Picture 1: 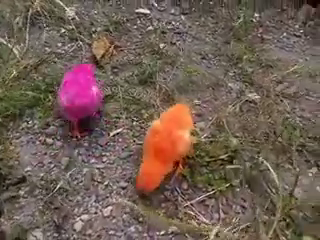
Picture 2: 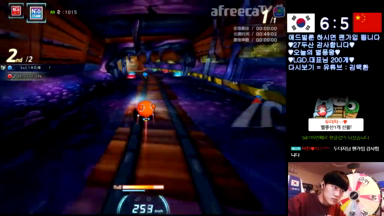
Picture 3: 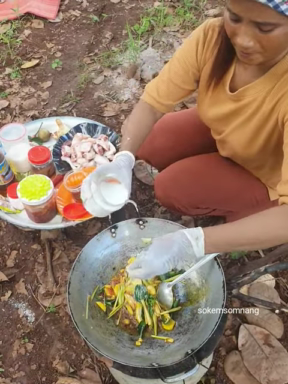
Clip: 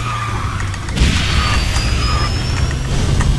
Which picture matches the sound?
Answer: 2